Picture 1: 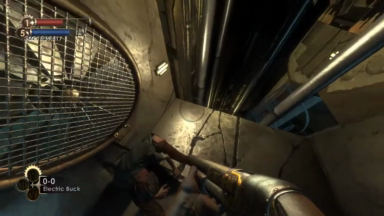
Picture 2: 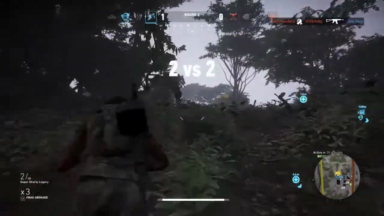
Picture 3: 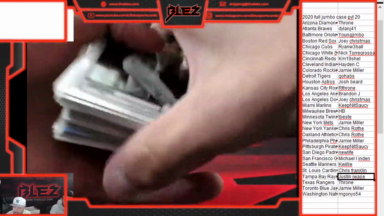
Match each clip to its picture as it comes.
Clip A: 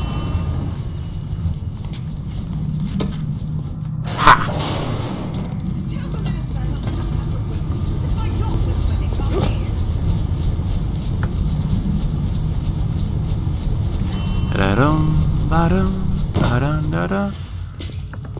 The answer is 1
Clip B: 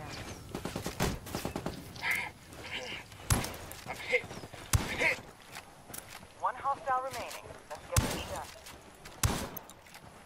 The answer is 2